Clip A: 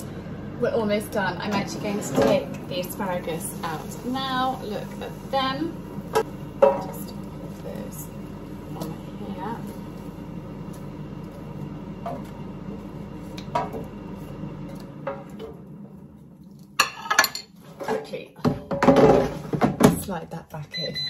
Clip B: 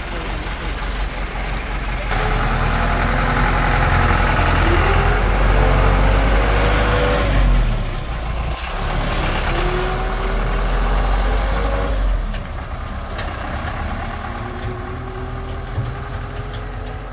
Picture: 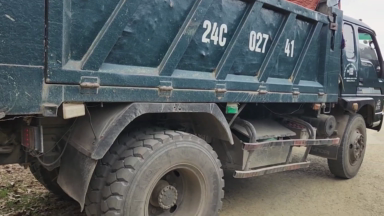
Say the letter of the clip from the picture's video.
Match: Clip B